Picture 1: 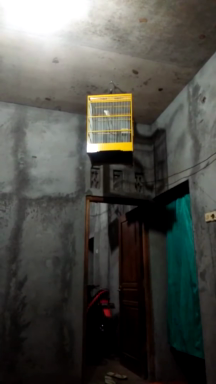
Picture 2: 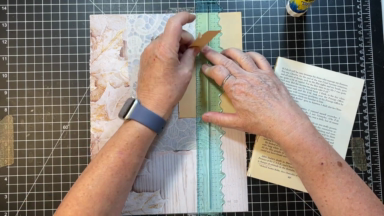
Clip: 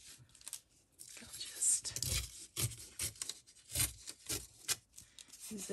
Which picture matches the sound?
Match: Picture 2